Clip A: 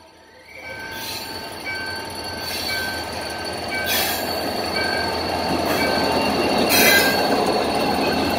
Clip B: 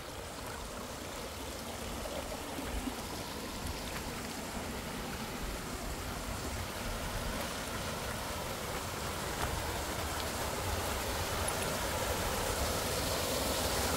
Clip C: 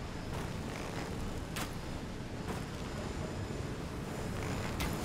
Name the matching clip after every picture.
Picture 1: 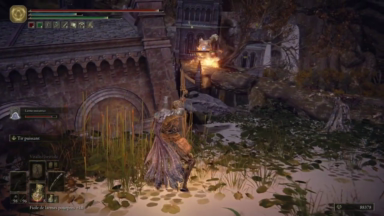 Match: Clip C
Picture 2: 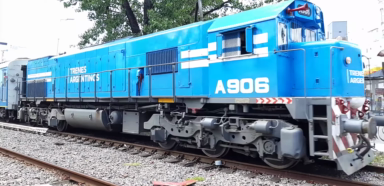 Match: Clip A